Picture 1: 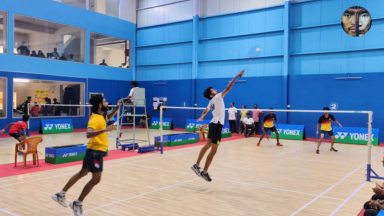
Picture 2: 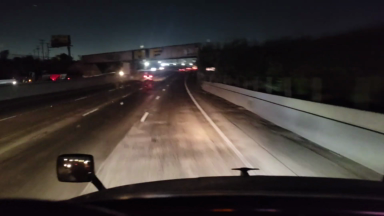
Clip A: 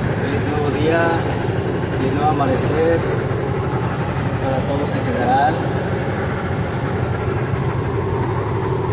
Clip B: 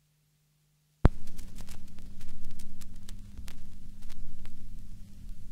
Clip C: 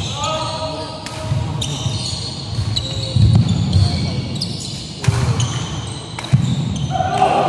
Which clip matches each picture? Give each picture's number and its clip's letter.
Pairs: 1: C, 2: A